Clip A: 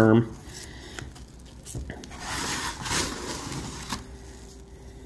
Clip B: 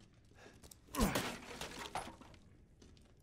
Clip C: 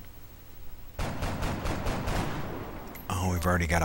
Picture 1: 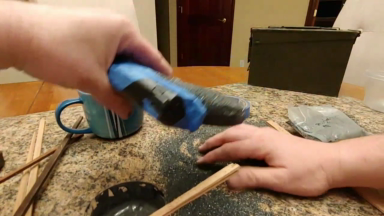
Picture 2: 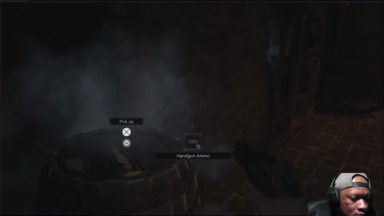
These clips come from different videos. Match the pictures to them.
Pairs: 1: A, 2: B